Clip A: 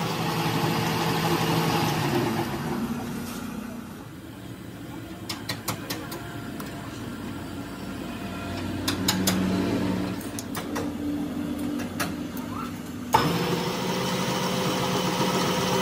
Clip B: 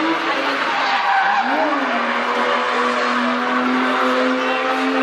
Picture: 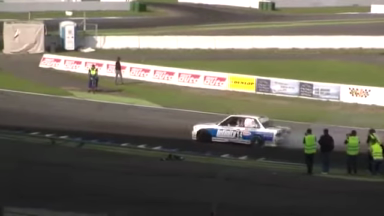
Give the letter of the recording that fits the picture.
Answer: B